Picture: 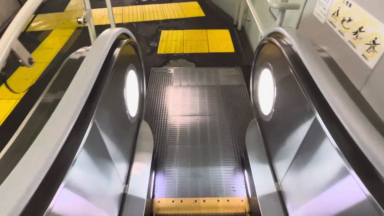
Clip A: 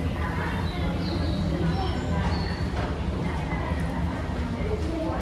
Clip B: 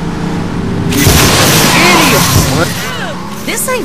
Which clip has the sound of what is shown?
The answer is A